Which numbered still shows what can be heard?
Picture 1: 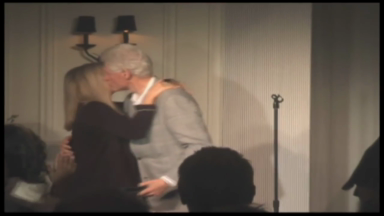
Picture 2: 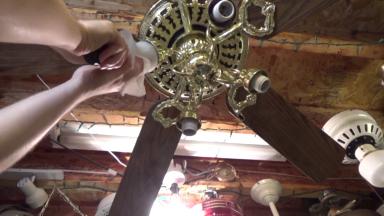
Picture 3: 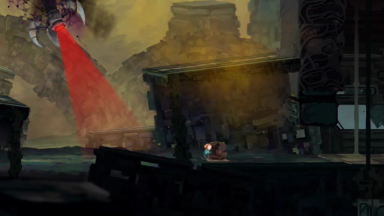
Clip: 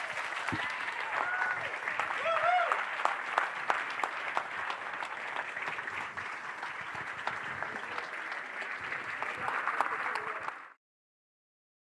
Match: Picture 1